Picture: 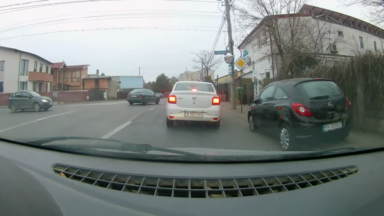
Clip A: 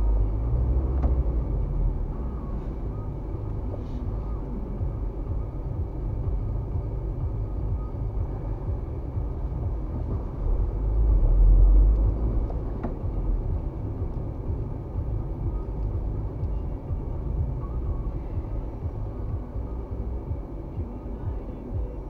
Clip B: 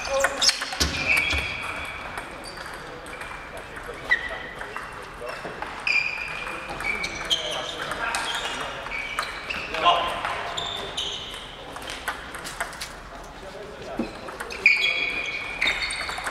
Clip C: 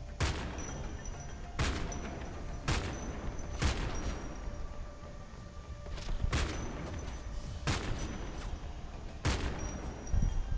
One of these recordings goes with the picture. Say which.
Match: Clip A